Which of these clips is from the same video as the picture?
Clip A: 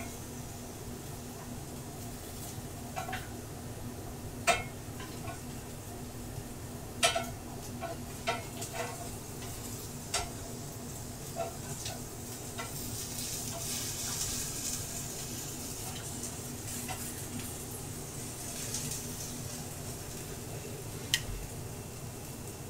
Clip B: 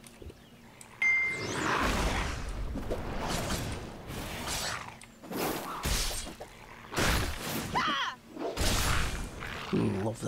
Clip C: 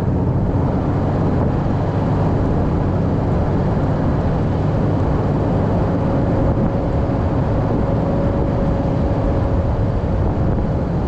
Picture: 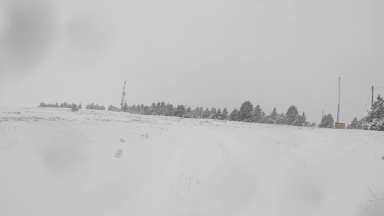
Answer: C